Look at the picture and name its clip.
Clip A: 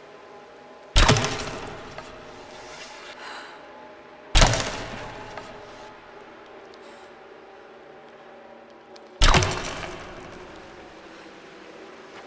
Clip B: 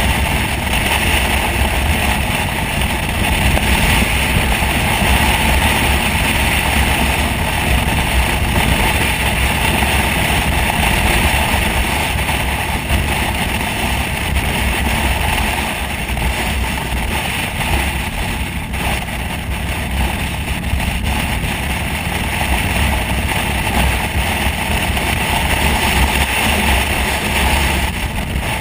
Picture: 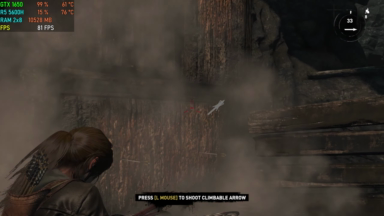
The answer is A